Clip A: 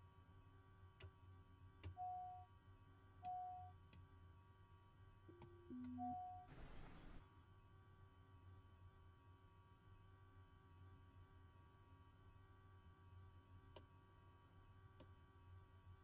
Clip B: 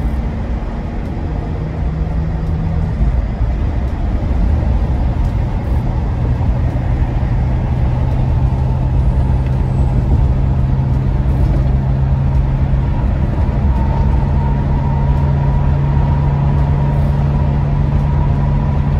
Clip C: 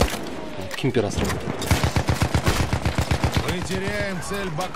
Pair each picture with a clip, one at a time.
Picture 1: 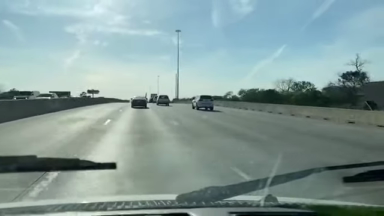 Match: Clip B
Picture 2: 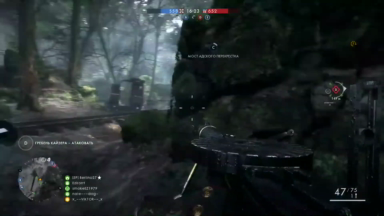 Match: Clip C